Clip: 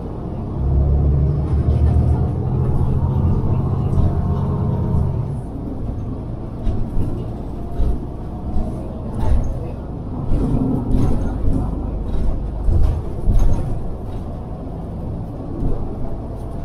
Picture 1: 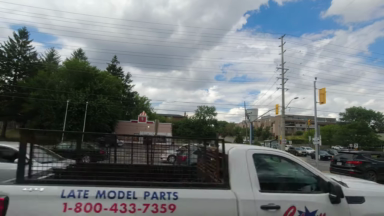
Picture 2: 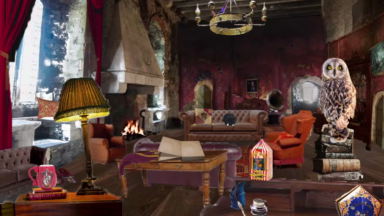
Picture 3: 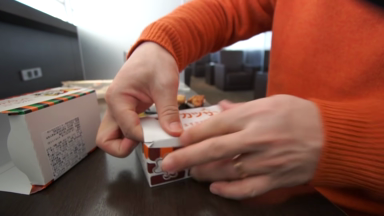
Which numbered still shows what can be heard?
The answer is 1